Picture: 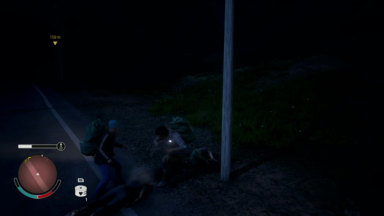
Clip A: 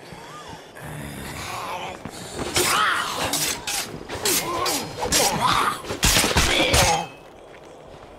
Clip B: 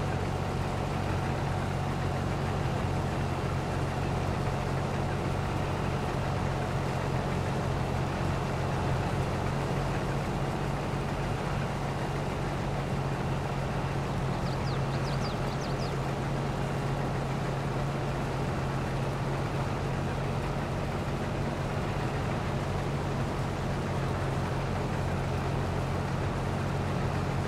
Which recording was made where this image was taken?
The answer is A